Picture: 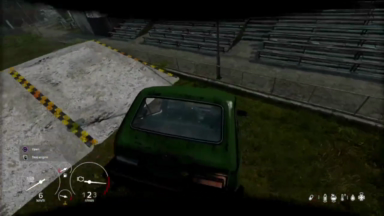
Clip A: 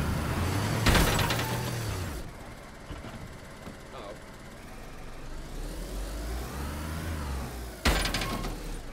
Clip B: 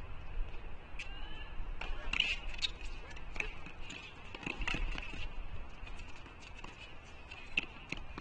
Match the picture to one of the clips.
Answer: A